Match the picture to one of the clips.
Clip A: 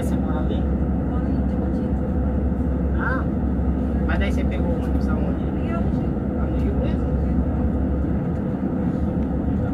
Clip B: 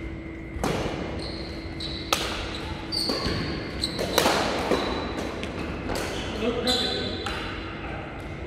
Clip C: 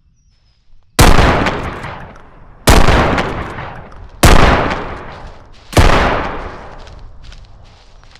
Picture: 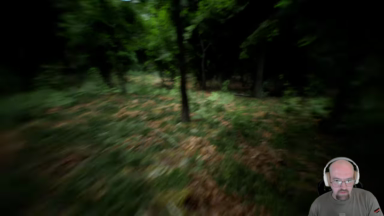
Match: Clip C